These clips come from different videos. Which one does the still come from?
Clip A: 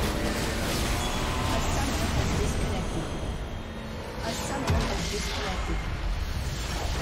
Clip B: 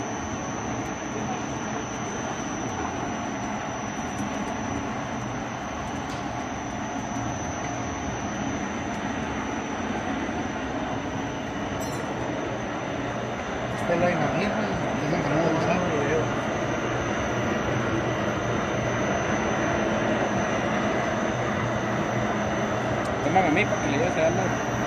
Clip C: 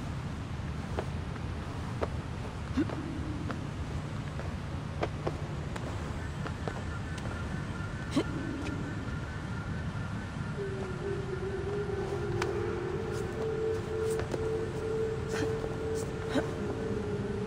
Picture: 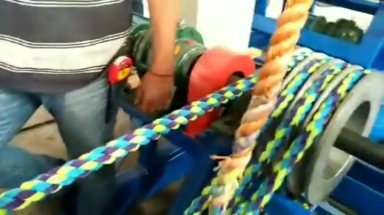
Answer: B